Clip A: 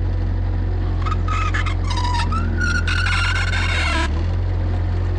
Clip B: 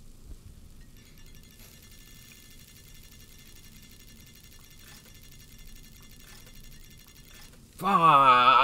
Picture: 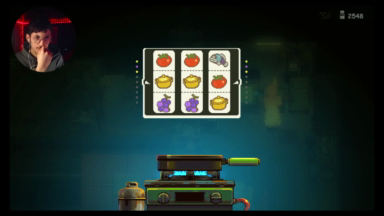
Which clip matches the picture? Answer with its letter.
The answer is B